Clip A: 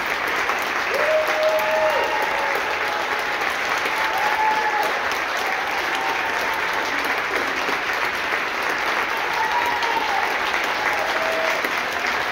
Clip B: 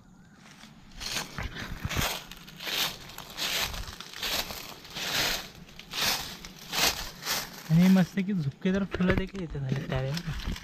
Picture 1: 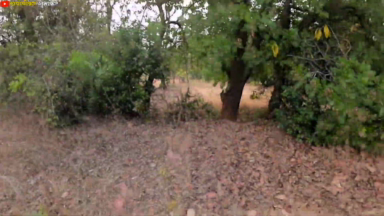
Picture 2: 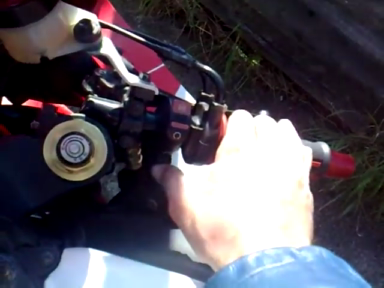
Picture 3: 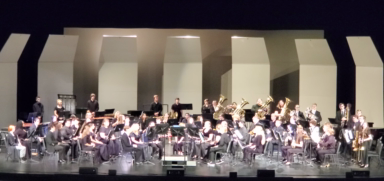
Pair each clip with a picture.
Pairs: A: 3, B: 1